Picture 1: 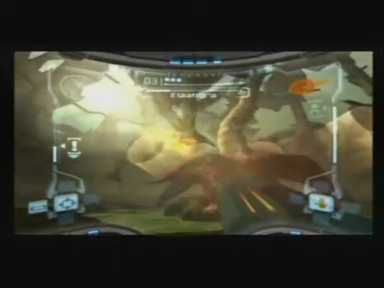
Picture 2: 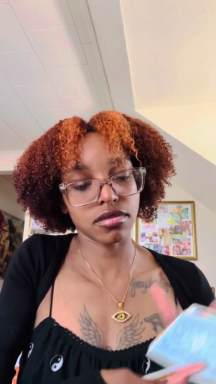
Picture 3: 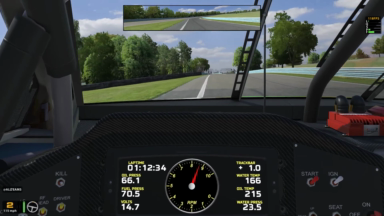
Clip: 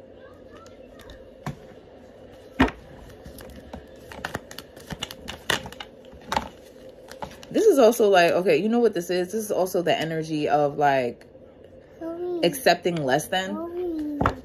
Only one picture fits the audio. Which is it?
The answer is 2